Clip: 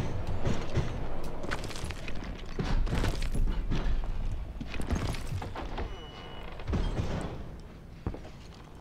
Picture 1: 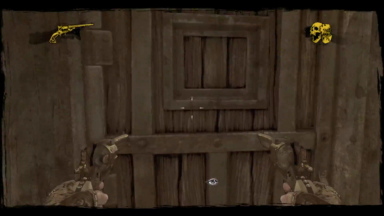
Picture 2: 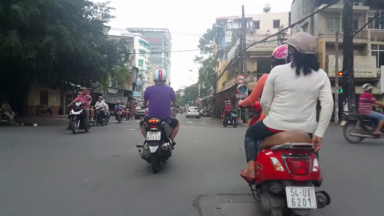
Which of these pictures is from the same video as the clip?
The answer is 1